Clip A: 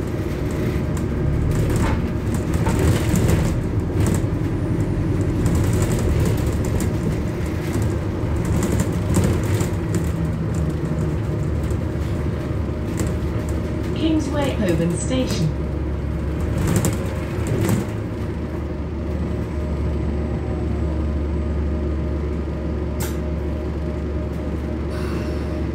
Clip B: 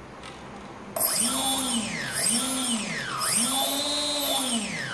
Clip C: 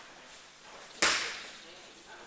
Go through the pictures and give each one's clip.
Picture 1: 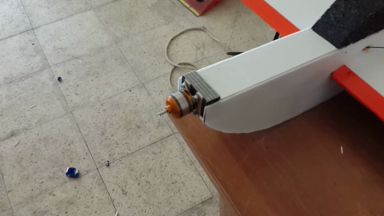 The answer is B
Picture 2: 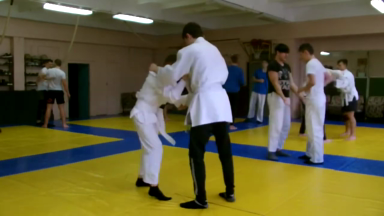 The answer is C